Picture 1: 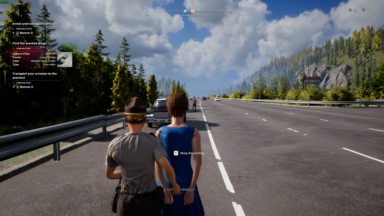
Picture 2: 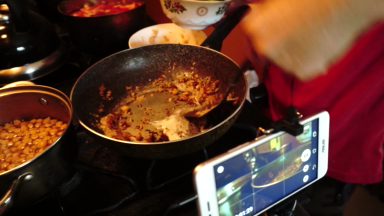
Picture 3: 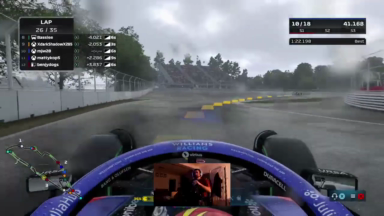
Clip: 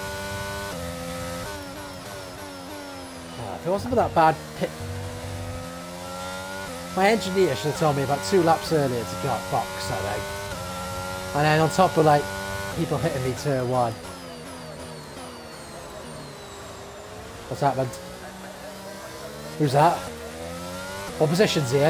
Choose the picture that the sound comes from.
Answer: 3